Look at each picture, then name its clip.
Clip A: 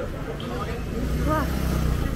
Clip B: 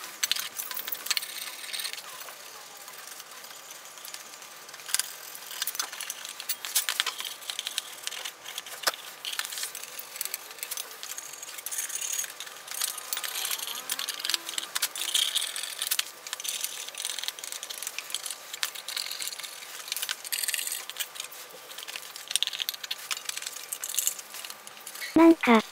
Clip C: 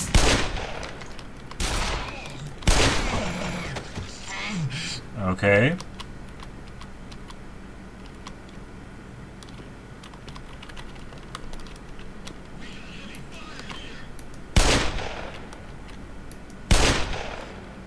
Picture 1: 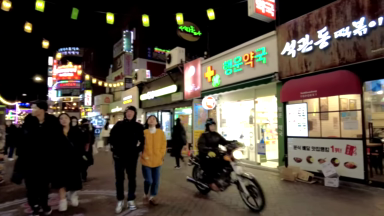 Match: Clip A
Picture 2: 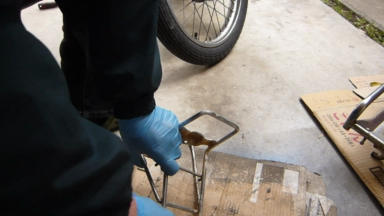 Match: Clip B